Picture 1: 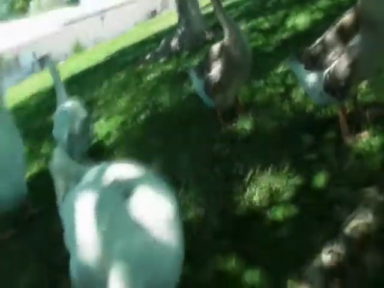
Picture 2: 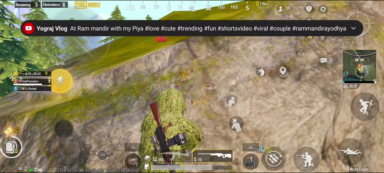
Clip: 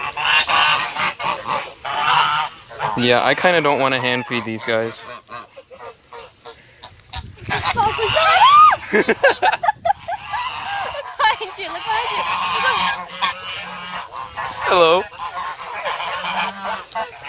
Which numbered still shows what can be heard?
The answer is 1